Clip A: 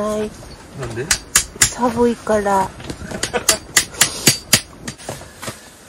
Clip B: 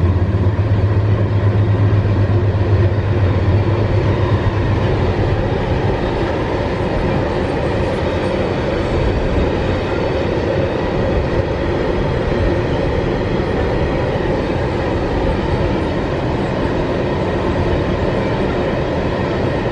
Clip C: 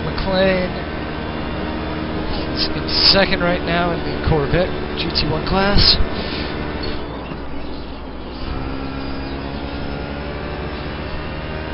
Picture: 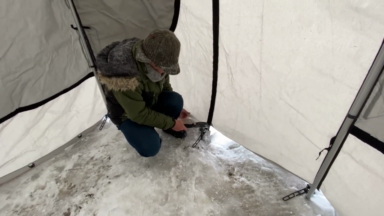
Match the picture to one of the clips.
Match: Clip A